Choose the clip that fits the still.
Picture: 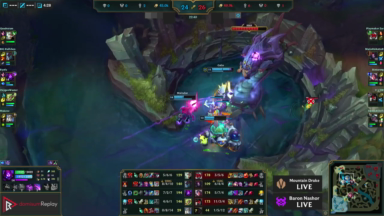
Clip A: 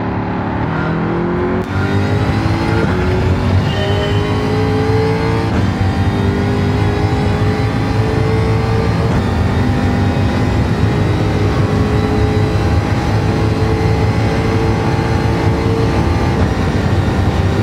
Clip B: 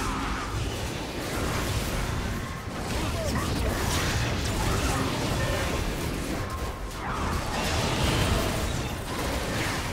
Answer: B